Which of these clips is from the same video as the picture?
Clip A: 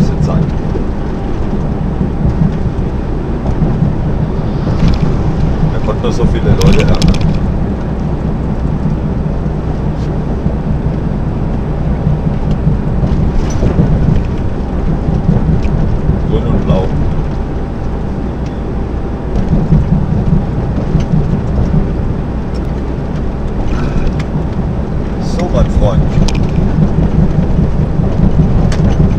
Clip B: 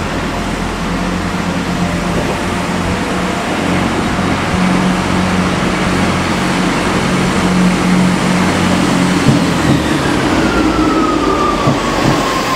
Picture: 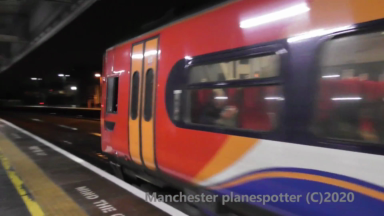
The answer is B